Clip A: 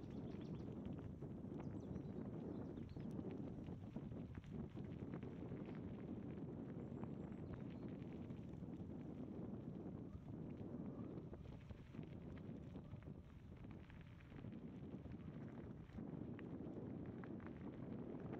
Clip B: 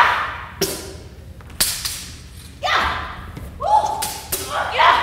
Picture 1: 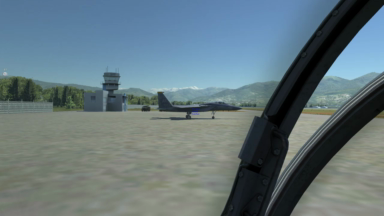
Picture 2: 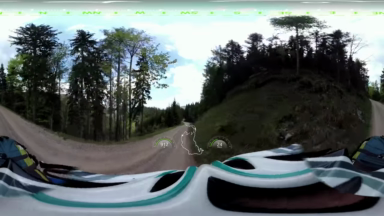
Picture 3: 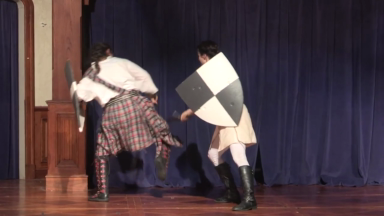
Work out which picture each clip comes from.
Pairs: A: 2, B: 3